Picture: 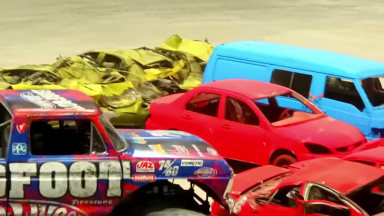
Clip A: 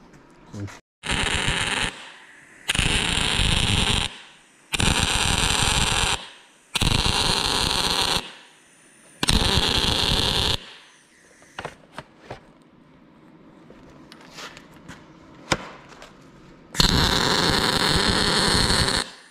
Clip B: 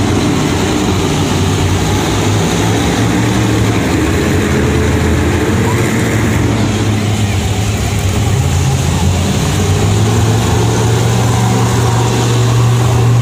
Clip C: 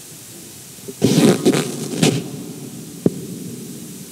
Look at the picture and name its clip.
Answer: B